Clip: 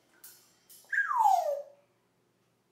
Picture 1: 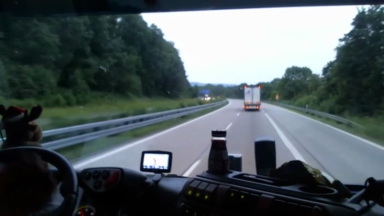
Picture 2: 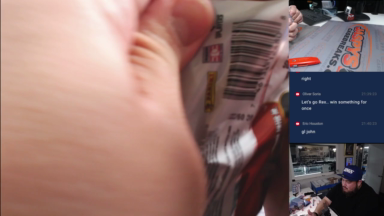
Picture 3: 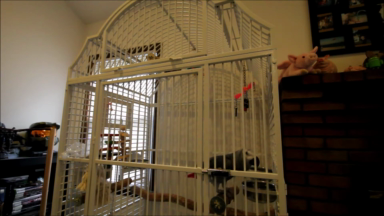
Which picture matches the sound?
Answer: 3